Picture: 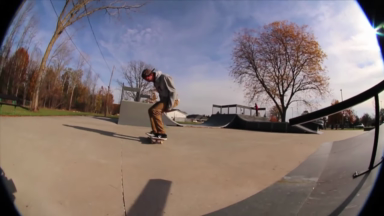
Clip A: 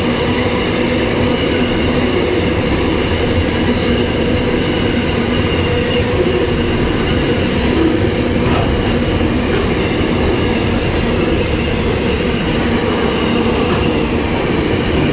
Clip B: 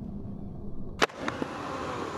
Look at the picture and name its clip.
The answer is B